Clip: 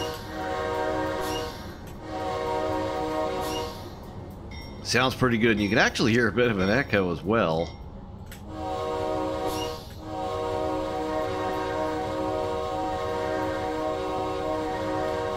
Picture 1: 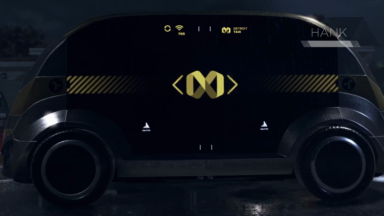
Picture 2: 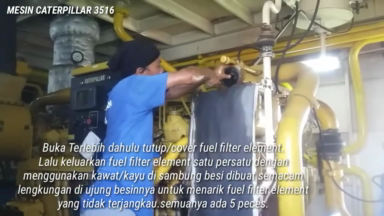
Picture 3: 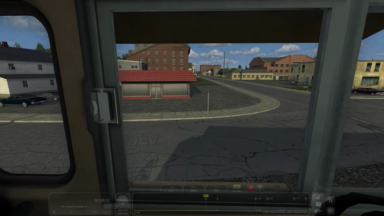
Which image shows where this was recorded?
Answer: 3